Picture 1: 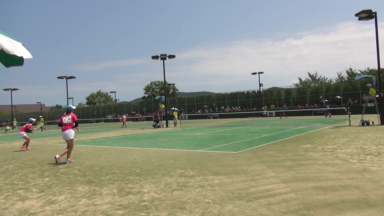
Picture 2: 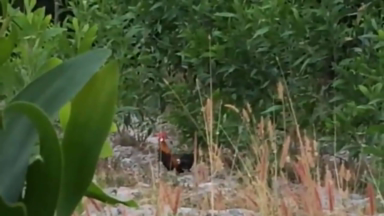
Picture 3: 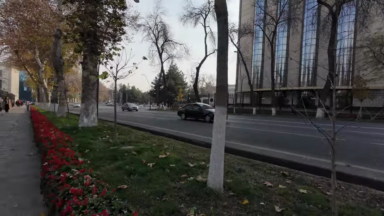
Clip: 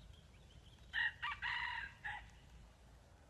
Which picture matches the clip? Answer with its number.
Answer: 2